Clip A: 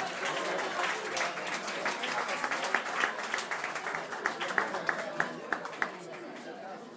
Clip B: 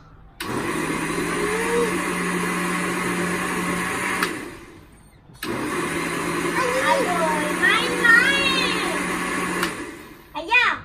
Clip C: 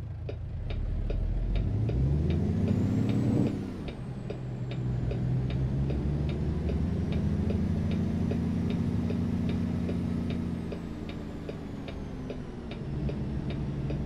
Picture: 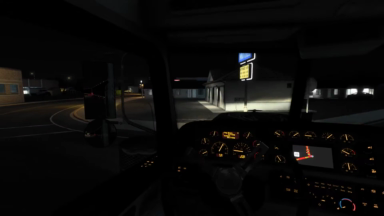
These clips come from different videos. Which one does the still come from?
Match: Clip C